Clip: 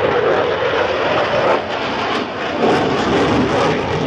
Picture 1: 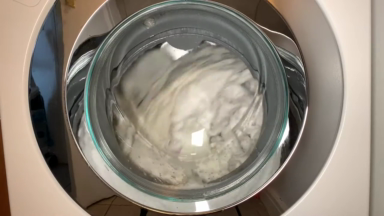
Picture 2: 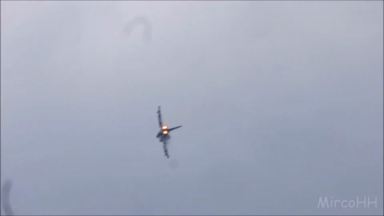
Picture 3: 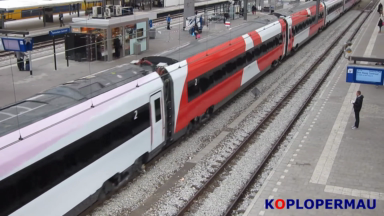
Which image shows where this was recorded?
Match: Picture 2